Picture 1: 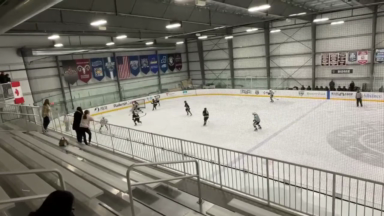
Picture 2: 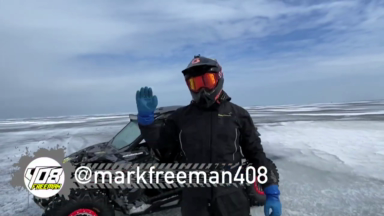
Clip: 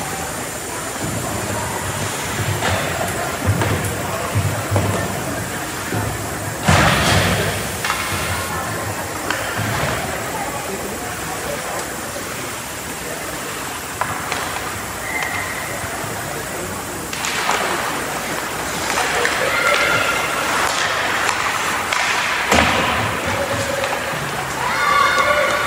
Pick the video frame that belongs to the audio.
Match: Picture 1